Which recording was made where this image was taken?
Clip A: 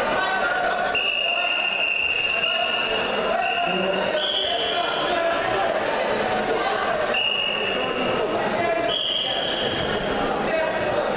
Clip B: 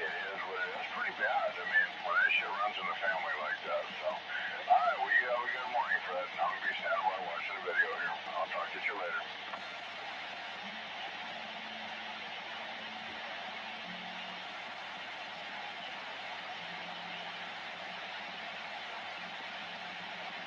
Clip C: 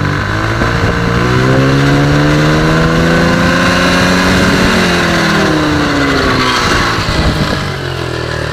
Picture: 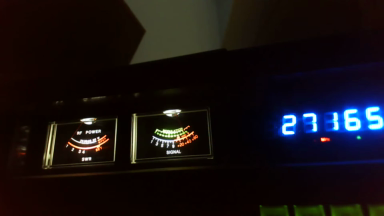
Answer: B